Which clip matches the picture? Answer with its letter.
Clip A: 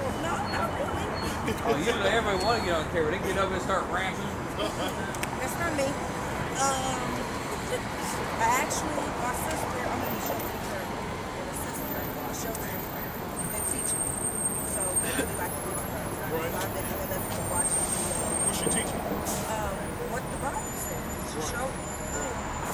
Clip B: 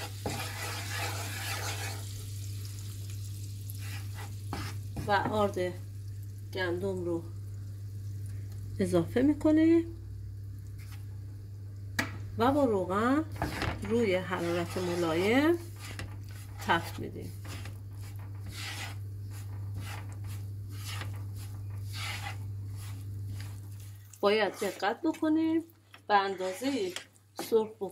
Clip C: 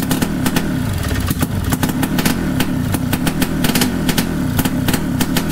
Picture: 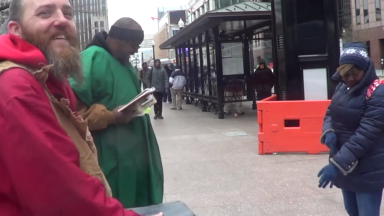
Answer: A